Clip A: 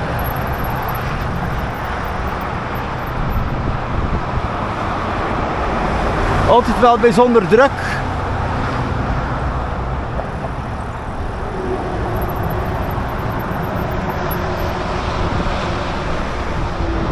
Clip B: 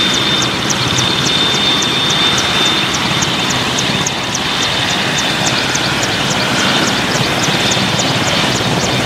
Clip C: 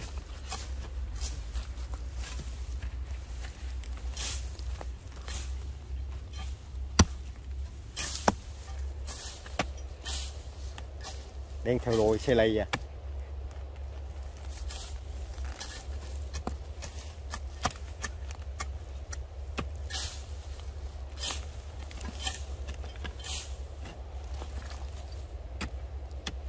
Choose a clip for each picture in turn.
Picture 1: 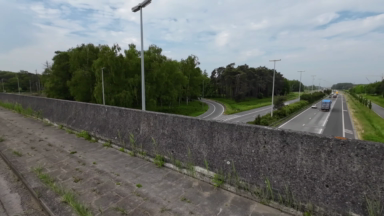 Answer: A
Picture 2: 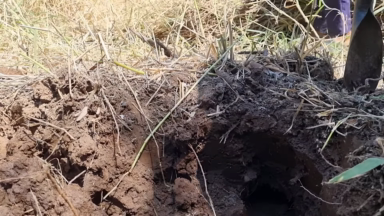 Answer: C